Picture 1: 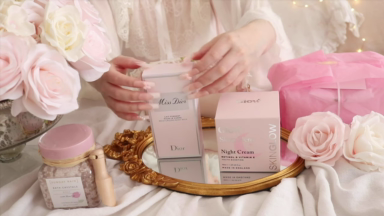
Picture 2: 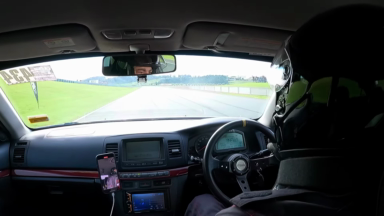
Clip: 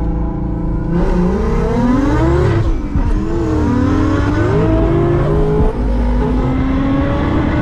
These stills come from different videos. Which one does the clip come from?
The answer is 2